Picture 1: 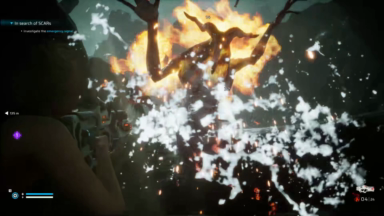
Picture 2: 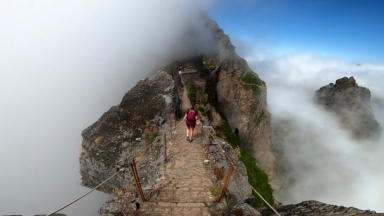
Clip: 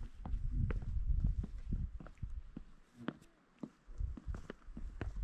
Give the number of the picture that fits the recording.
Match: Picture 2